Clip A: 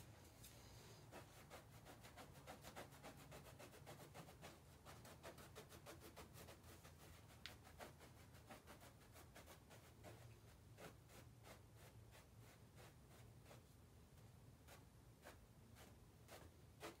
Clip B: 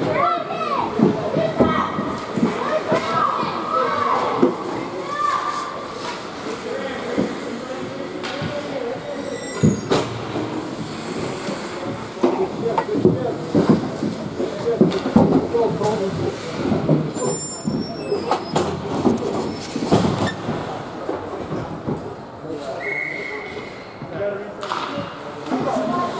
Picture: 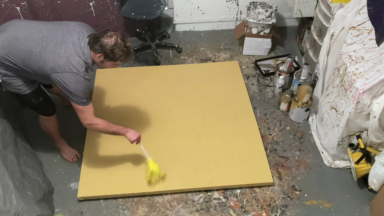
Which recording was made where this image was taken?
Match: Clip A